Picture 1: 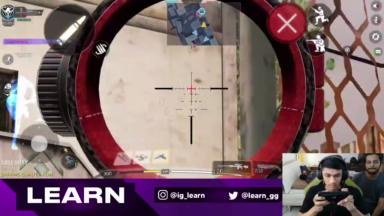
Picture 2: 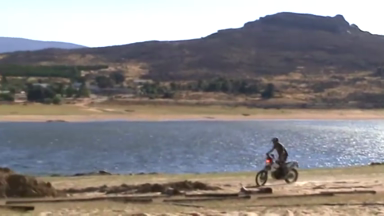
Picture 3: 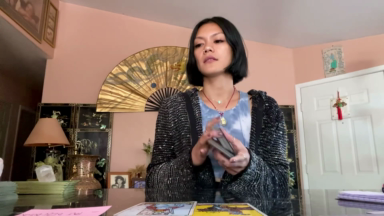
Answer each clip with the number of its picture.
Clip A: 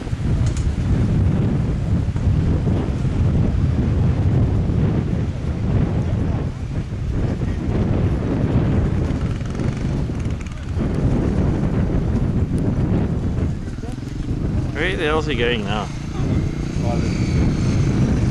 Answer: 2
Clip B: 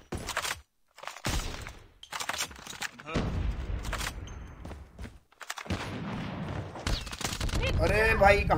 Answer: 1